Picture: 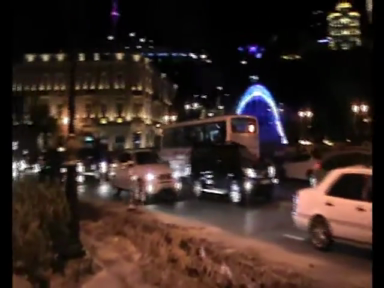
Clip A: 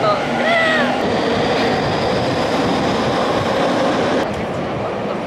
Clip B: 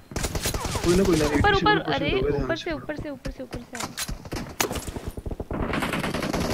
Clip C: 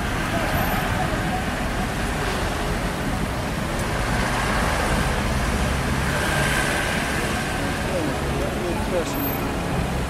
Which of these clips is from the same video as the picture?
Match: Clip C